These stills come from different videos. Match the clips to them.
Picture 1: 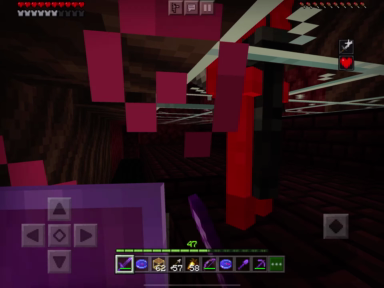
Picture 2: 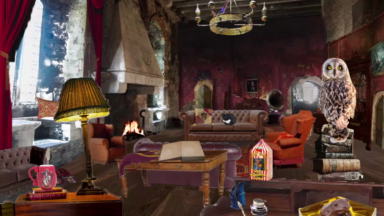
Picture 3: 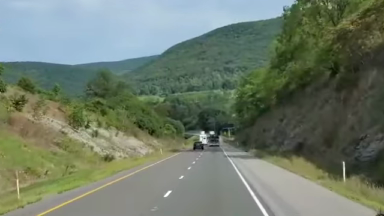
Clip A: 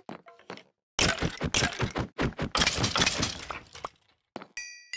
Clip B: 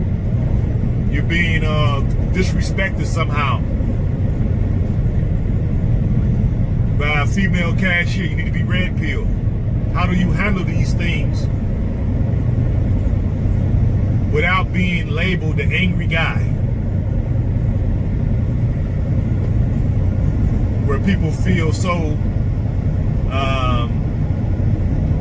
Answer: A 1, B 3